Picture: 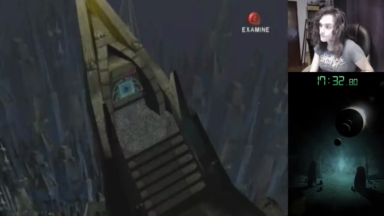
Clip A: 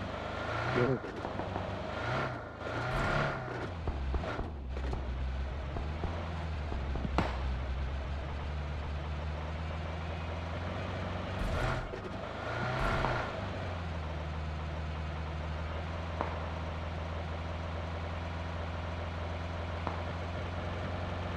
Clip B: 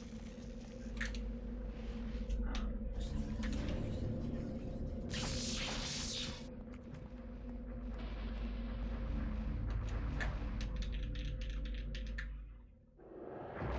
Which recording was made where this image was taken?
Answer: B